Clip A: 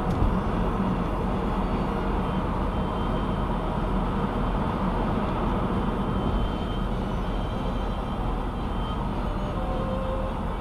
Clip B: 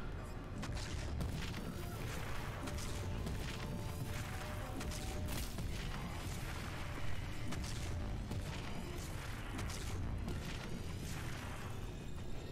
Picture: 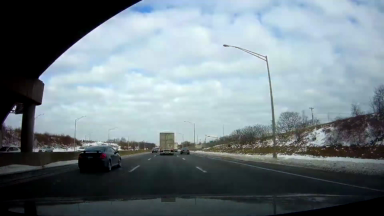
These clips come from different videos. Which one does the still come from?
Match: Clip A